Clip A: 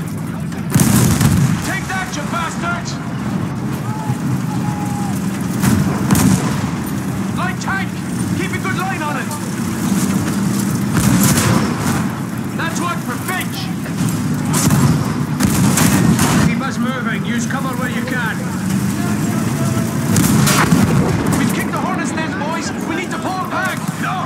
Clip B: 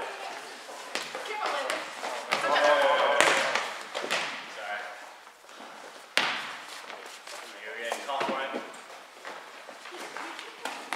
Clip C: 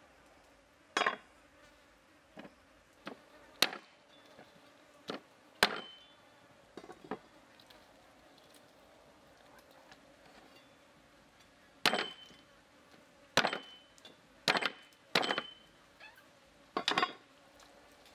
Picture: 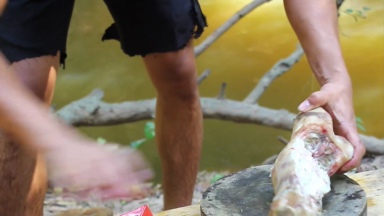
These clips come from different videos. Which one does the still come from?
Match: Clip C